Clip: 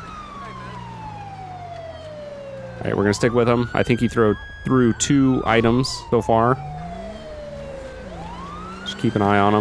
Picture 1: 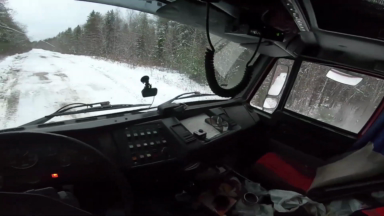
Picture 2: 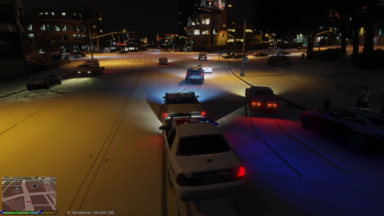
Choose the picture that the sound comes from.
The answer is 2